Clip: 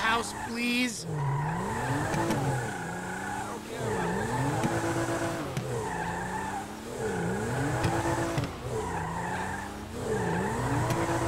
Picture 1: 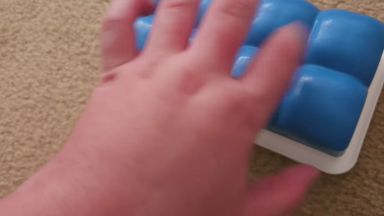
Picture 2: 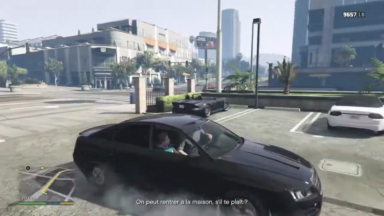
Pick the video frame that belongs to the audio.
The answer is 2